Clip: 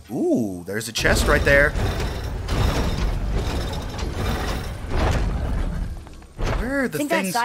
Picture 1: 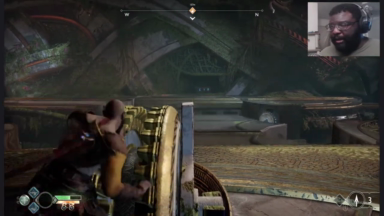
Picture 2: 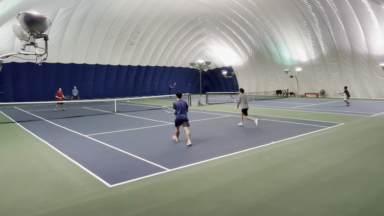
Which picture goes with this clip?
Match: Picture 1